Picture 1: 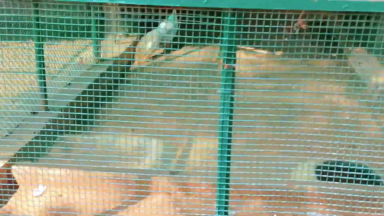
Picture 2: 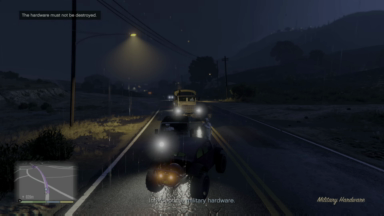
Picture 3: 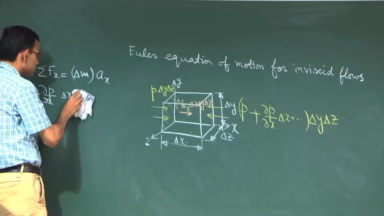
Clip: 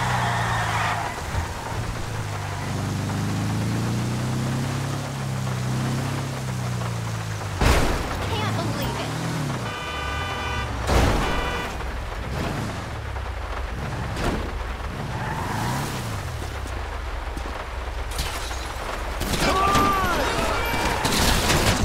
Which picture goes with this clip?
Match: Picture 2